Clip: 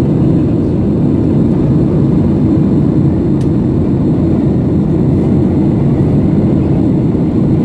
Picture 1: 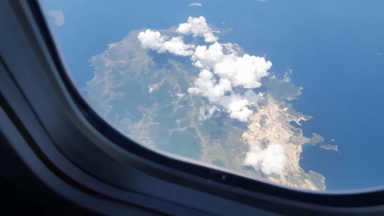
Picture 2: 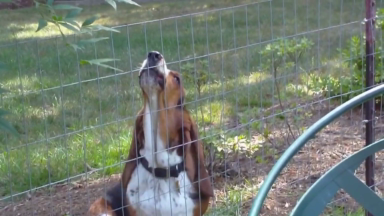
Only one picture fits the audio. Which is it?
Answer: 1